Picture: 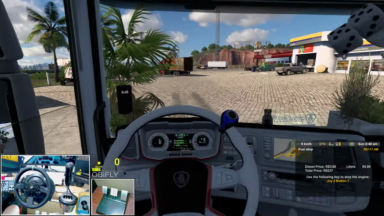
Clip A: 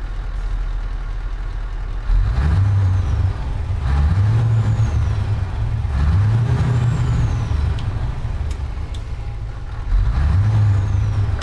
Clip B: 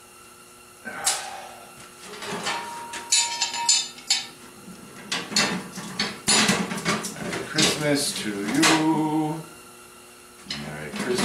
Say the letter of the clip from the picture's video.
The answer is A